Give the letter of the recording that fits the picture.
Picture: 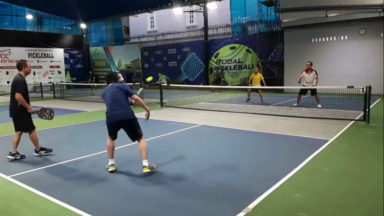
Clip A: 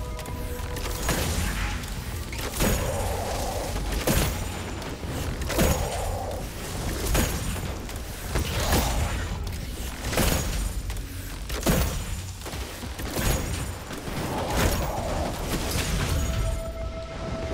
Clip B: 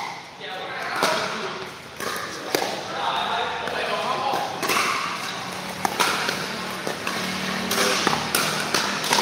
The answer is B